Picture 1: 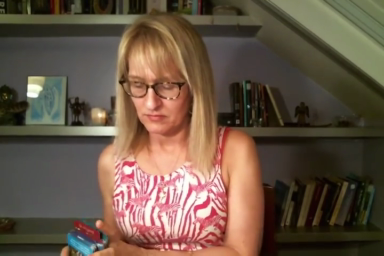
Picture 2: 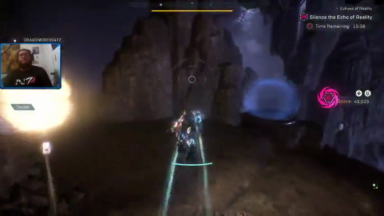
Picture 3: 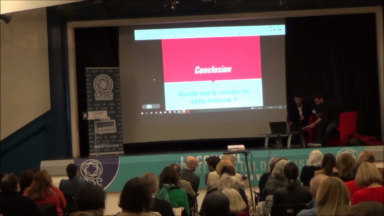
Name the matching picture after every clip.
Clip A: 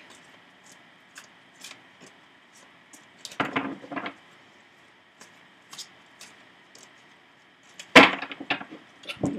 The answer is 1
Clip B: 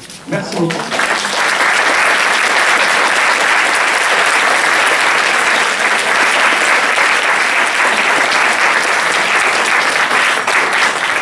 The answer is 3